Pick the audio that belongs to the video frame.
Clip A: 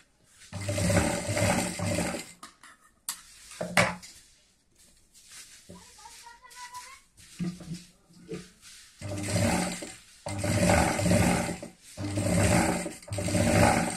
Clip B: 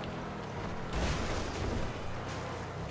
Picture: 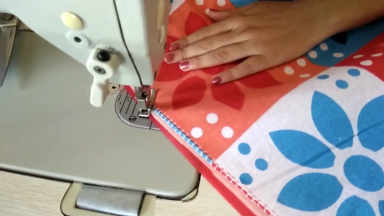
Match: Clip A